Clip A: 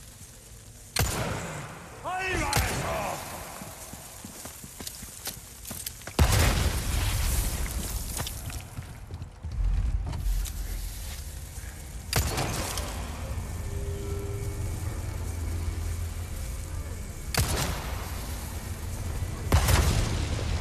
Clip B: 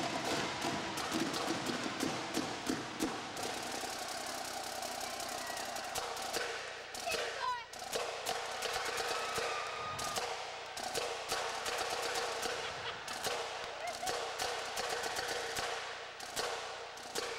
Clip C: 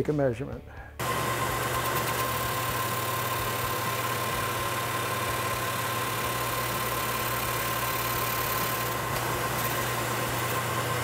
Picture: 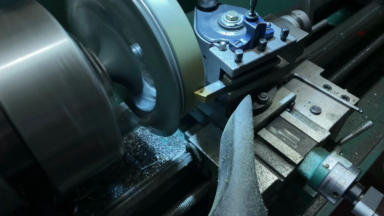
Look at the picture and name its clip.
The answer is C